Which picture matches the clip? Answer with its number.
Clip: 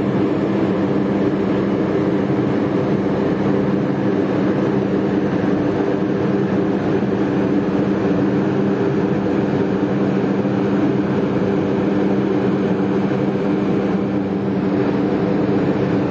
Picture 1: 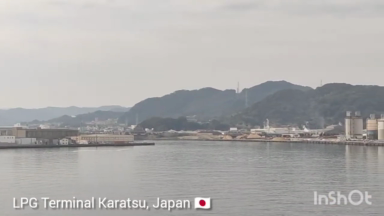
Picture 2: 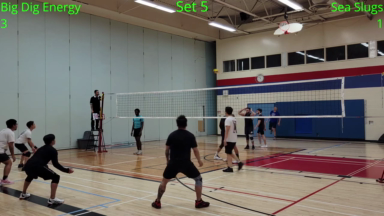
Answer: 1